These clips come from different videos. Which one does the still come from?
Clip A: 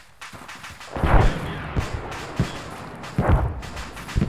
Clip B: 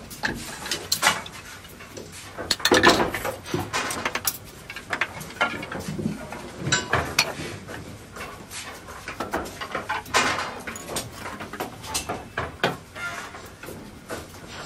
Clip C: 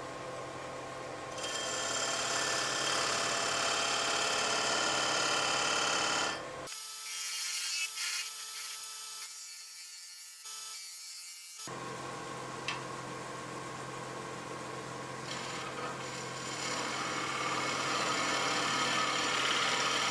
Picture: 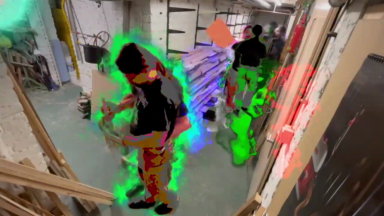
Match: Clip B